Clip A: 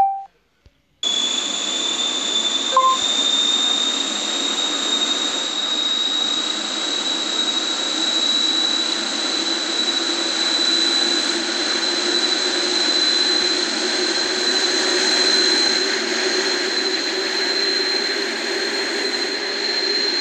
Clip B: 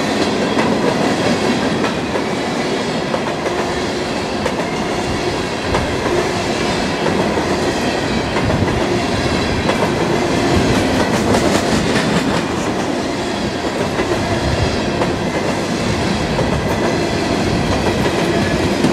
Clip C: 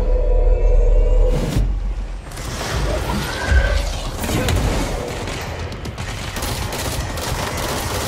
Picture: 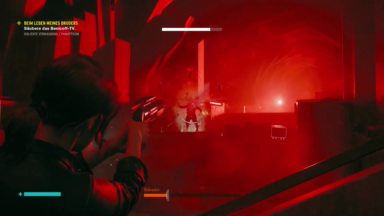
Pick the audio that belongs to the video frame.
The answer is C